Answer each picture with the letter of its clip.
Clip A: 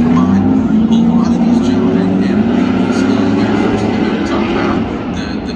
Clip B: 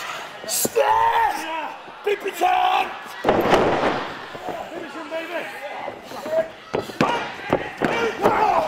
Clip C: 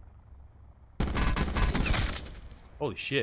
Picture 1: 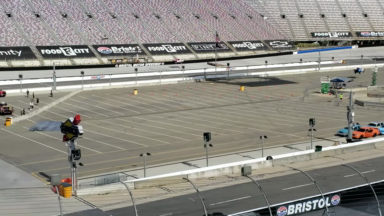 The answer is A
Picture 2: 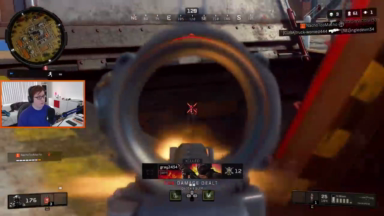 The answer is C